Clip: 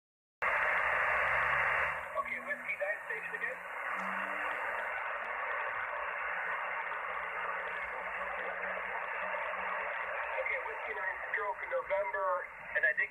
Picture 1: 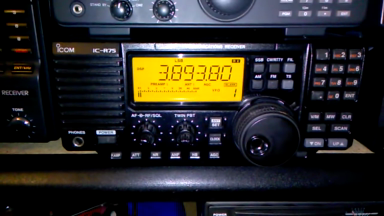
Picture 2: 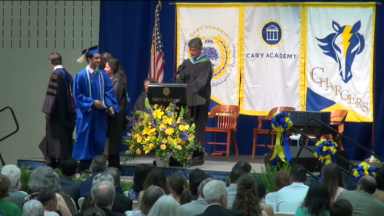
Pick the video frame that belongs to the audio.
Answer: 1